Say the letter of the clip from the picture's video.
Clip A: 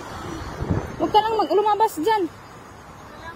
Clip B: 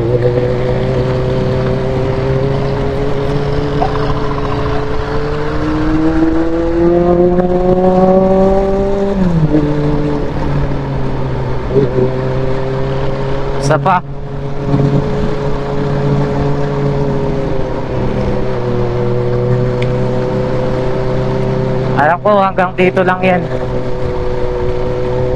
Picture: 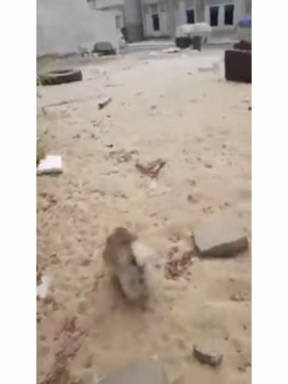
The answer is A